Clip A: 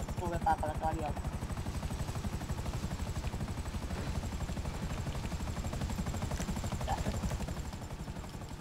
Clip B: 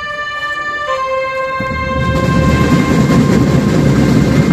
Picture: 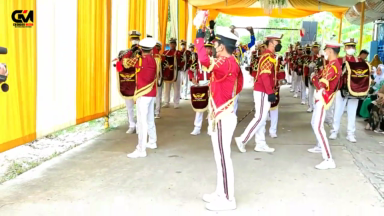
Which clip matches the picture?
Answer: B